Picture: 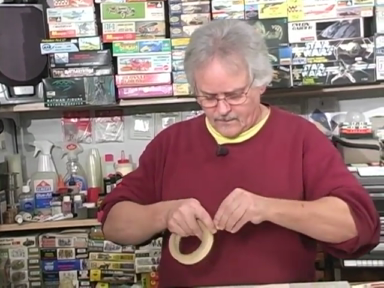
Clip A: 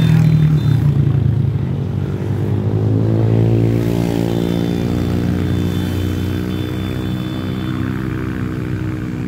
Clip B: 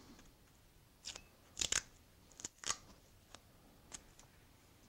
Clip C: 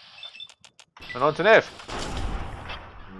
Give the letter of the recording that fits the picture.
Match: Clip B